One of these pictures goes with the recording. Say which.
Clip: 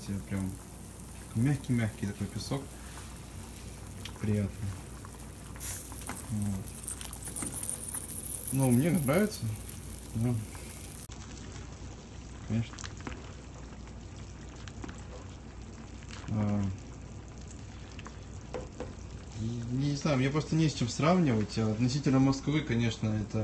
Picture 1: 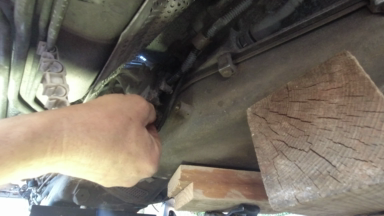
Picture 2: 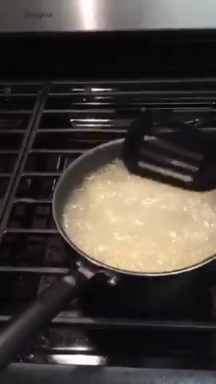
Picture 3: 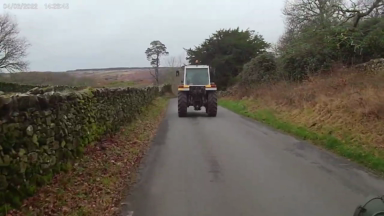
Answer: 2